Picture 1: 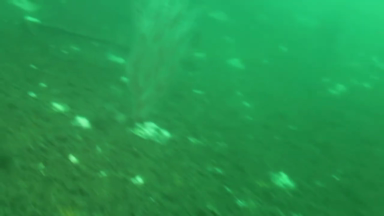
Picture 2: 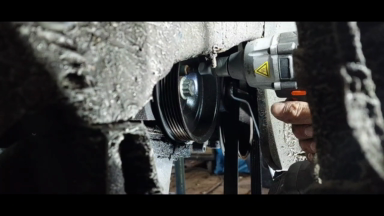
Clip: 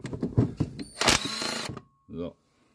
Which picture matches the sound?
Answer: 2